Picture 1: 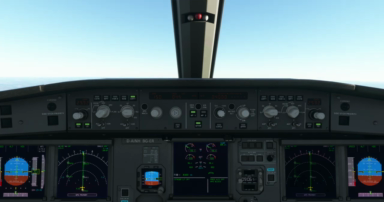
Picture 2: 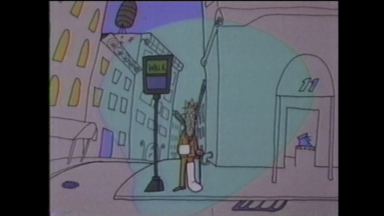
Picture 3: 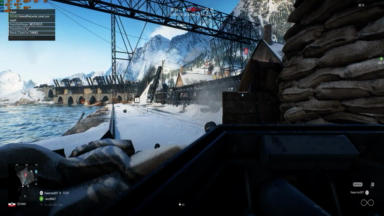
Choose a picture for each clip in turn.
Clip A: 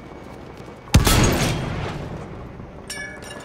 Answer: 3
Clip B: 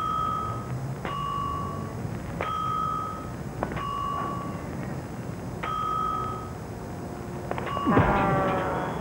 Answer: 2